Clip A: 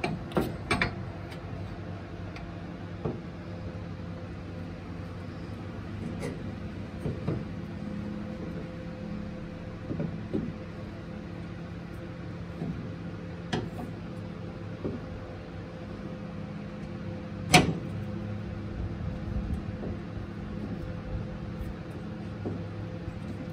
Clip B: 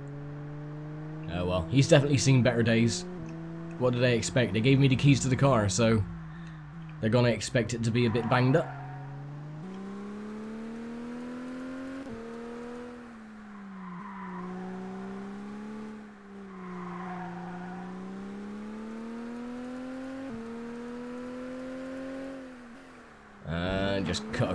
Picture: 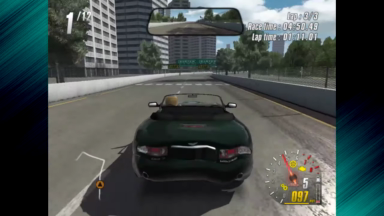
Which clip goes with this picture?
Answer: B